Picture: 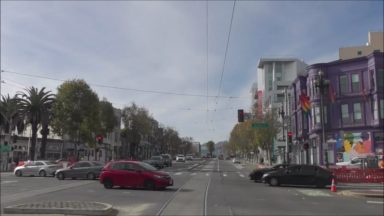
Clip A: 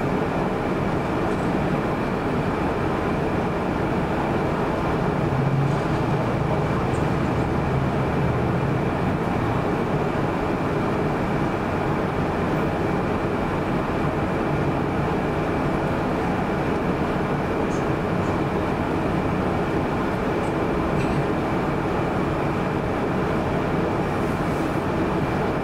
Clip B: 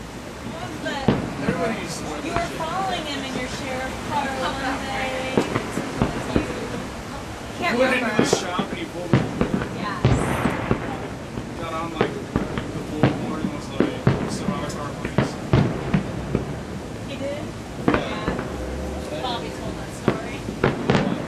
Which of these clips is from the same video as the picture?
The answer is A